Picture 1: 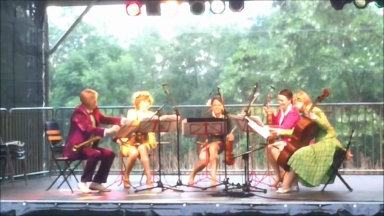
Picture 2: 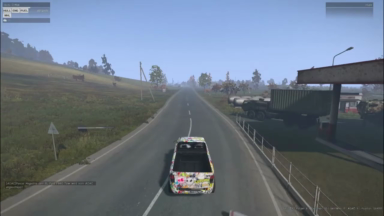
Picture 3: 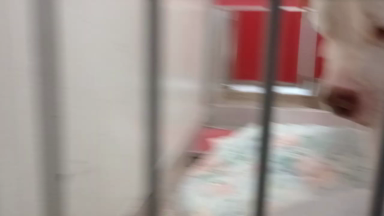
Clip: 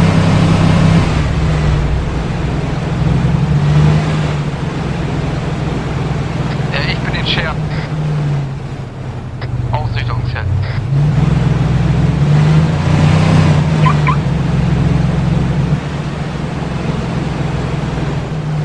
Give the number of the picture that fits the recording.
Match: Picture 2